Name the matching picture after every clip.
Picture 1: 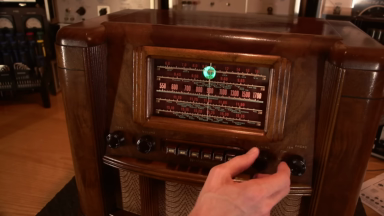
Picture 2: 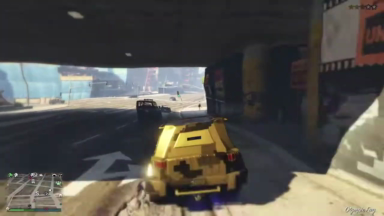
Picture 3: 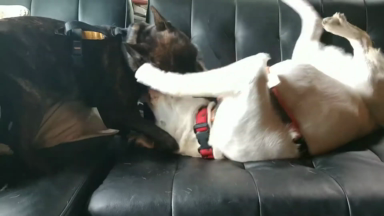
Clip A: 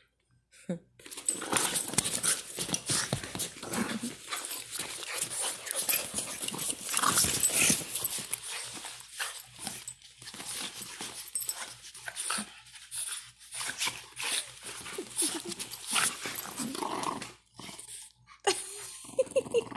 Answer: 3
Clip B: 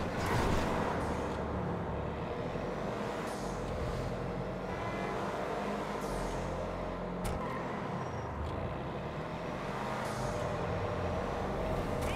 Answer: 2